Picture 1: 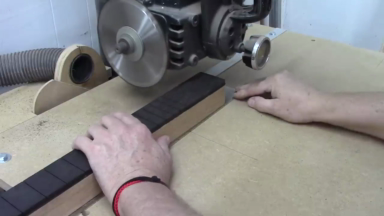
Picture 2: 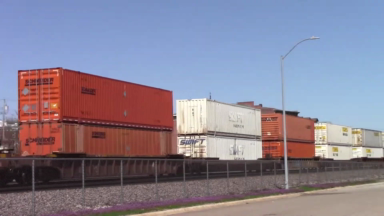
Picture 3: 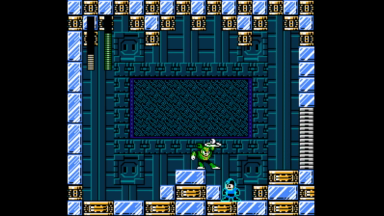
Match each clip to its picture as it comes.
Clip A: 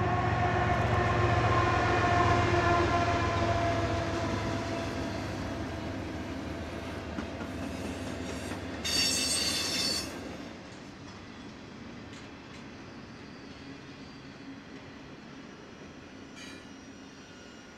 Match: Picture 2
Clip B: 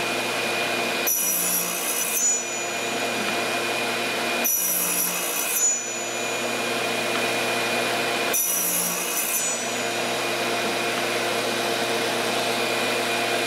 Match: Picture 1